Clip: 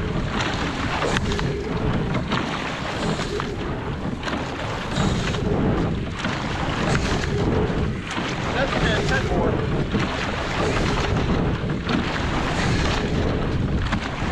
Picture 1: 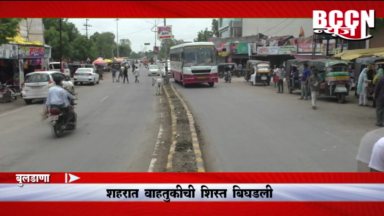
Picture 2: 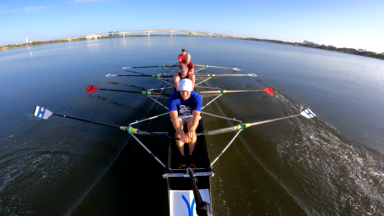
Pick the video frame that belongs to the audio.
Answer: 2